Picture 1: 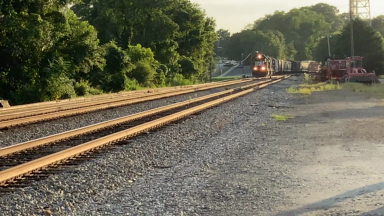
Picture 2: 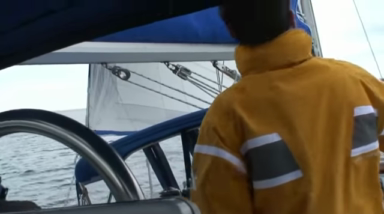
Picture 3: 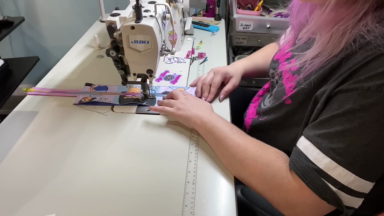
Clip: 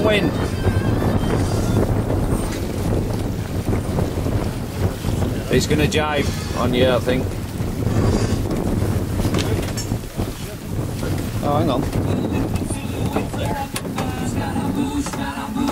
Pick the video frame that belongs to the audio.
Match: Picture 2